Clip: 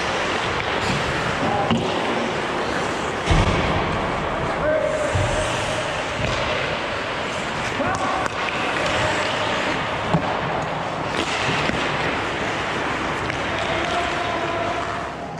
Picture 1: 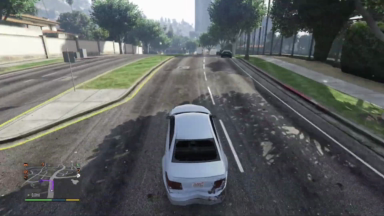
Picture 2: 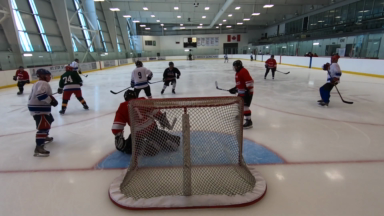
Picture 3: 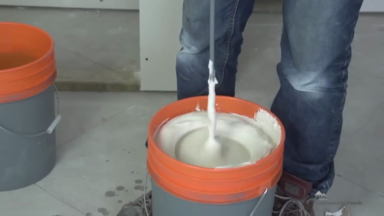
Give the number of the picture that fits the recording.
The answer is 2